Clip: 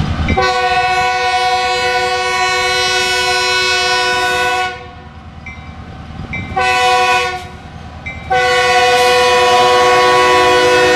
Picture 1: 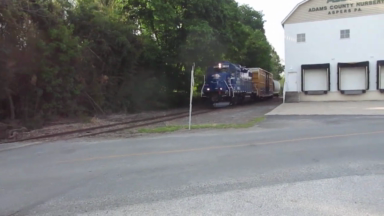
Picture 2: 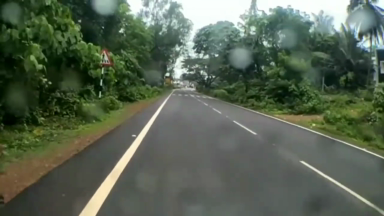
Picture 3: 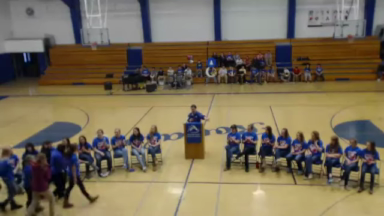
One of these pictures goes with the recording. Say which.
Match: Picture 1